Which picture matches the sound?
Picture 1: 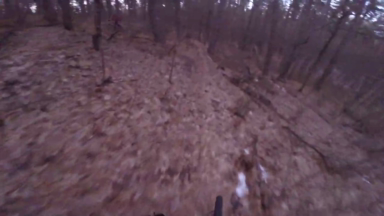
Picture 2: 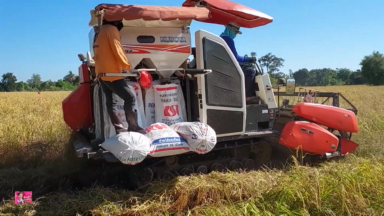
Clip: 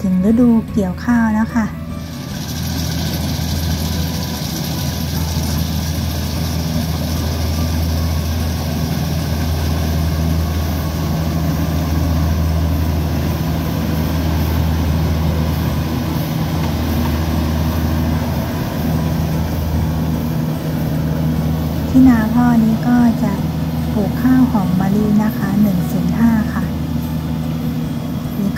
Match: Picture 2